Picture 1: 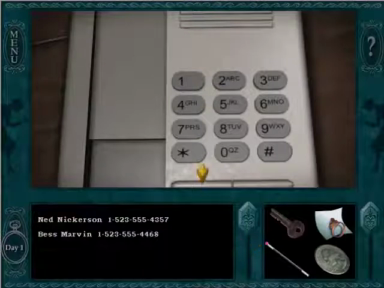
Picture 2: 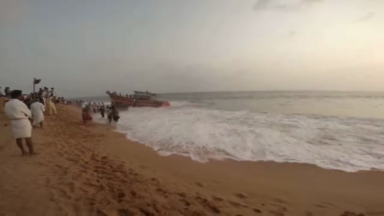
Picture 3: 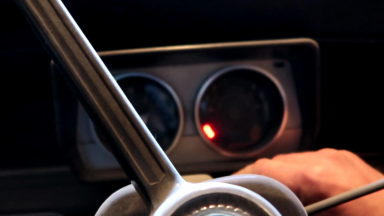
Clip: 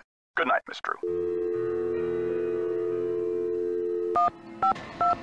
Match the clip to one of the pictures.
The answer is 1